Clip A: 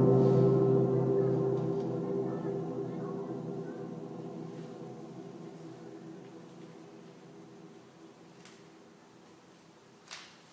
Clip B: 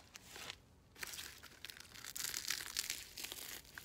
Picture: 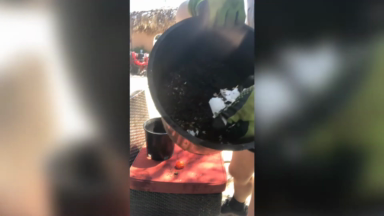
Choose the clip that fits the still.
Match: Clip B